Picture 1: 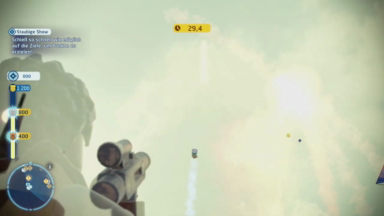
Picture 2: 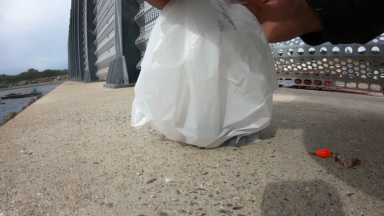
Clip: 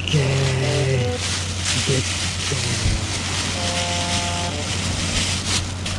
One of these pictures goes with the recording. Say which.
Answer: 2